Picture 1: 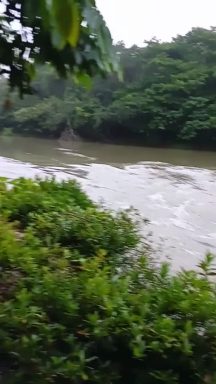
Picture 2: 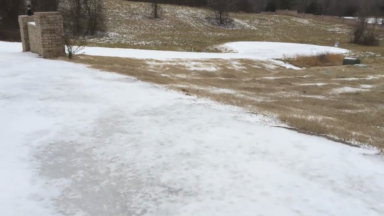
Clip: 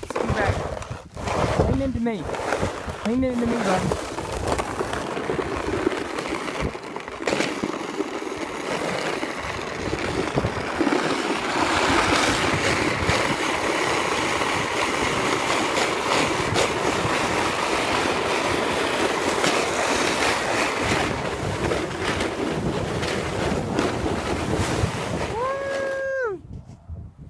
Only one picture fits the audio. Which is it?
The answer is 2